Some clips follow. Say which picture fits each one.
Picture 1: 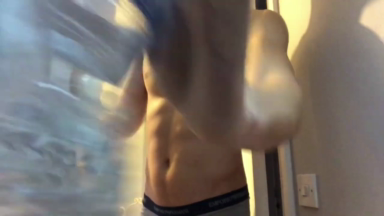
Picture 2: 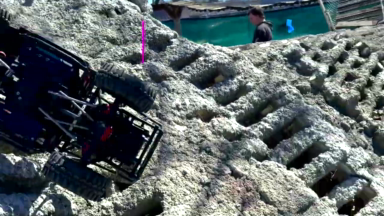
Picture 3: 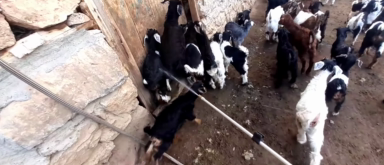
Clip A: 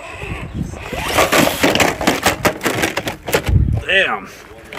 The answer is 2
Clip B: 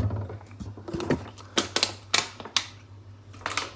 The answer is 1